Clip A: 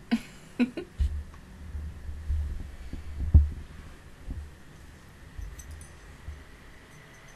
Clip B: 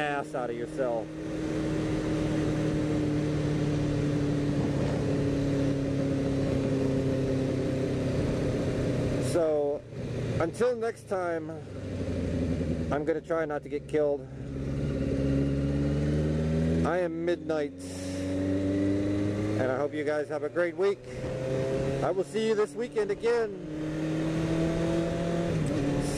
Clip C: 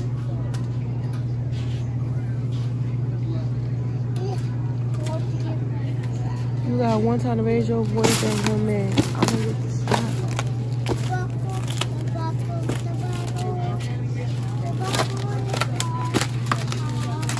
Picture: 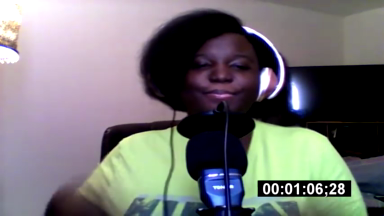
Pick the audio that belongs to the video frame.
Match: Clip A